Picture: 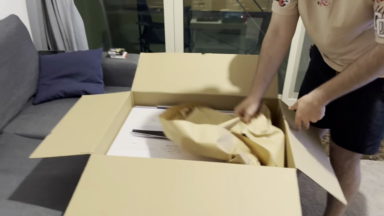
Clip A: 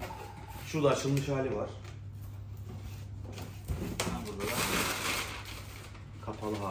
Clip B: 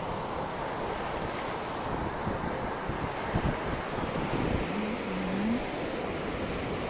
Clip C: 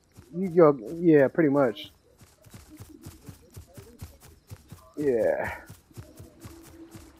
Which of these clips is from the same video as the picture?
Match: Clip A